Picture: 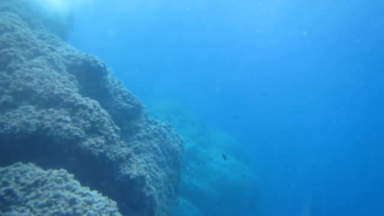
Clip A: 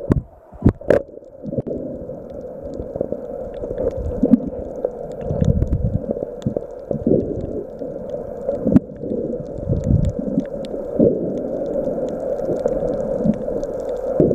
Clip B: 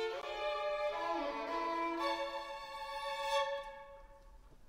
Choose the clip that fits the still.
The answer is A